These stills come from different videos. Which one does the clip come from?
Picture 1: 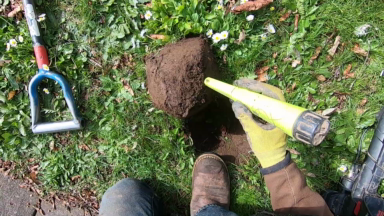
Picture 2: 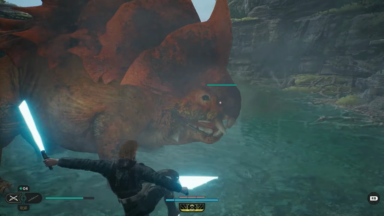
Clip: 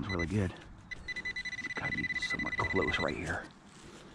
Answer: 1